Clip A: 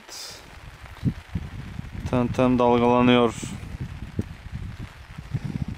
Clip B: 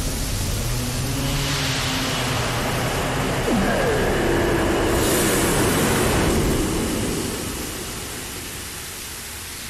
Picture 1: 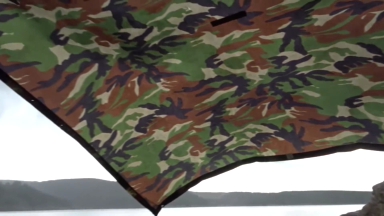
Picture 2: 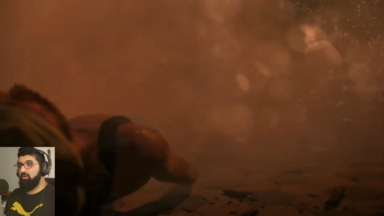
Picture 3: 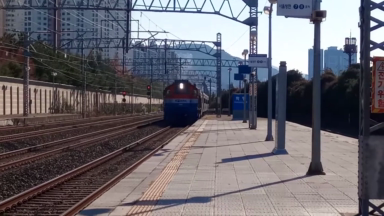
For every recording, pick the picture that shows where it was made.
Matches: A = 1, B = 2